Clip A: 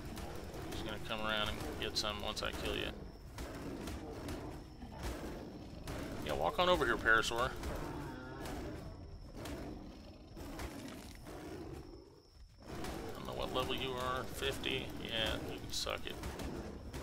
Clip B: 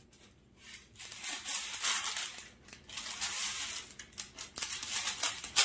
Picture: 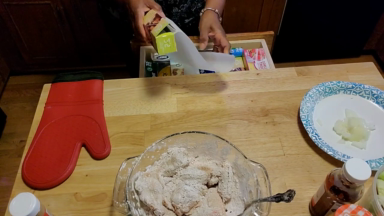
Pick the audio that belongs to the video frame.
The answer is B